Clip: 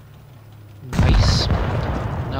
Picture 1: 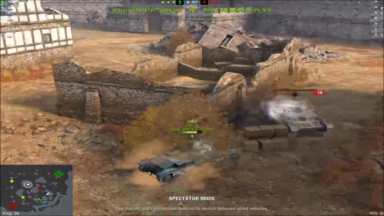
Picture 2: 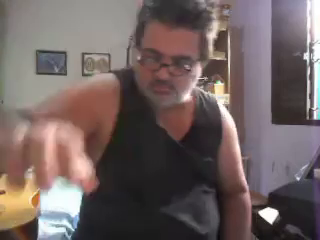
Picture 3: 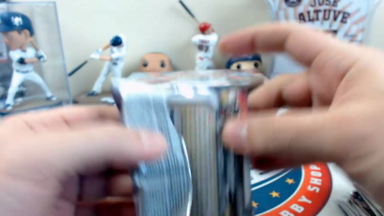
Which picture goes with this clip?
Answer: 1